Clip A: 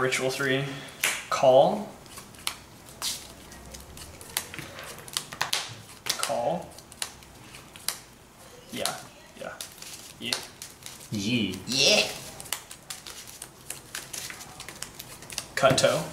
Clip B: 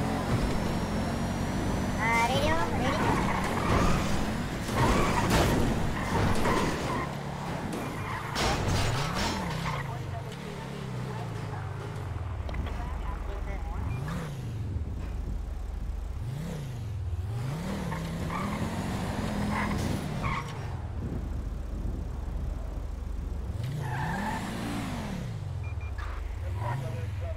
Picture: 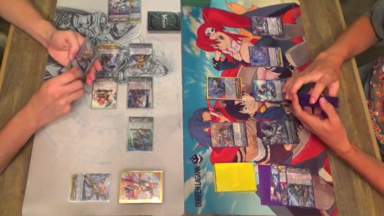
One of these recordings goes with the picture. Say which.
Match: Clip A